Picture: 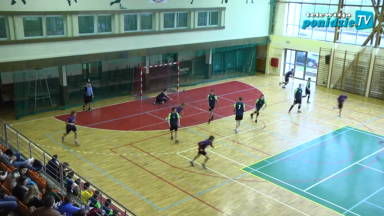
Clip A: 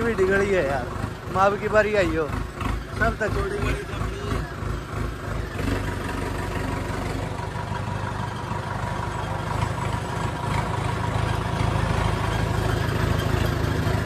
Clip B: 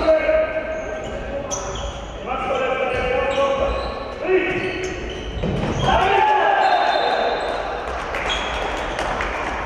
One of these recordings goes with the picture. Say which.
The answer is B